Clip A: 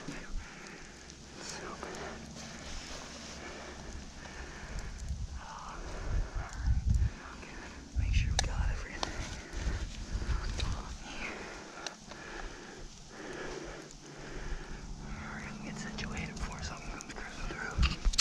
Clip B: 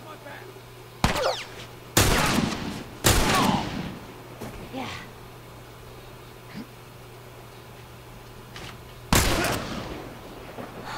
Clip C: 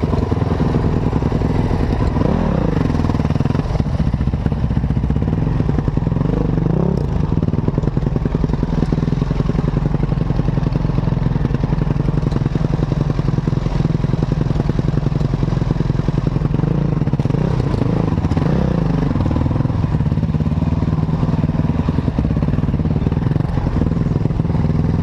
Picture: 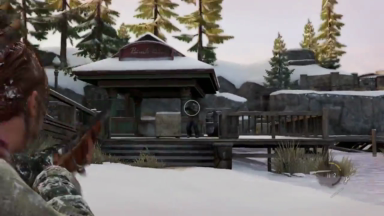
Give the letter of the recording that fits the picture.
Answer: B